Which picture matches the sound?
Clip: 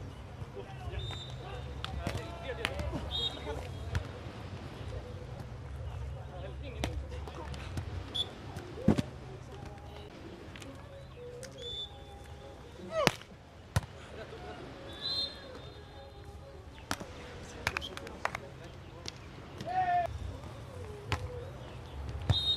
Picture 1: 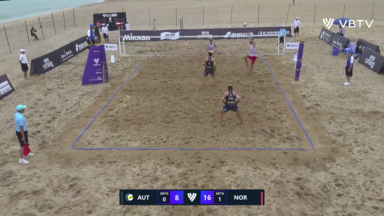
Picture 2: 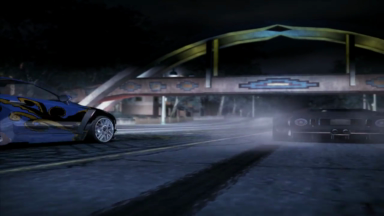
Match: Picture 1